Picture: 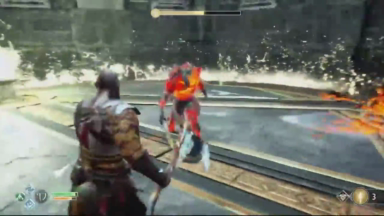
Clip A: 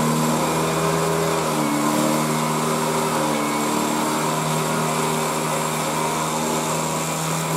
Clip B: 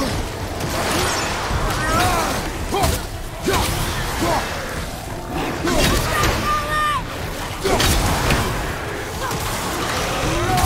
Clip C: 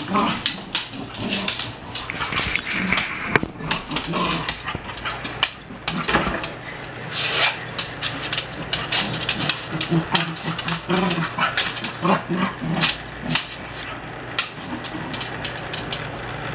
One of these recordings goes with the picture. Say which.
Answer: B